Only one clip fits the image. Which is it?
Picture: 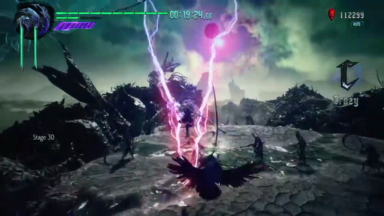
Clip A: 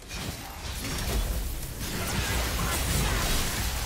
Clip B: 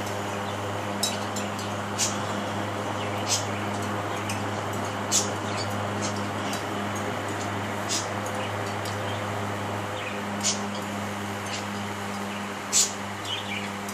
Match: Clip A